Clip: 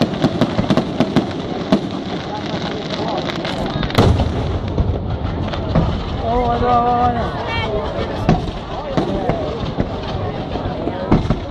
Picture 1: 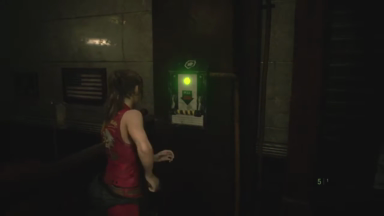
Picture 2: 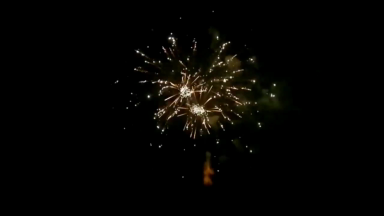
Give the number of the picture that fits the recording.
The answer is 2